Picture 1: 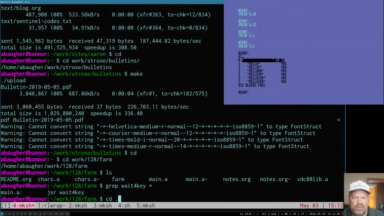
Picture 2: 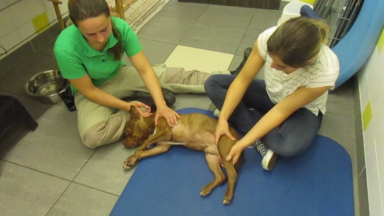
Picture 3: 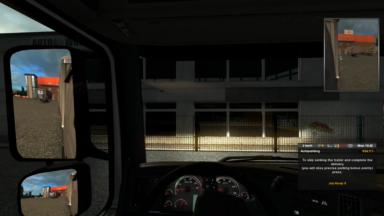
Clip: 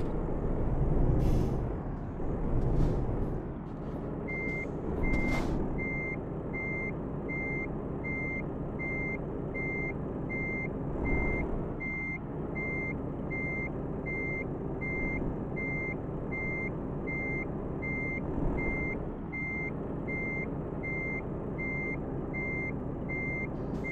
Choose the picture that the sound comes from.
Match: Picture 3